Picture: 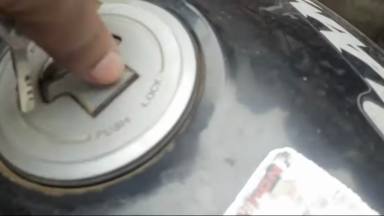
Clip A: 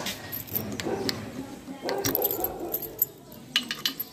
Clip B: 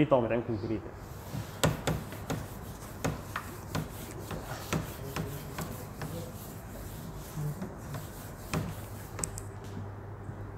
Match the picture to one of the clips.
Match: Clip A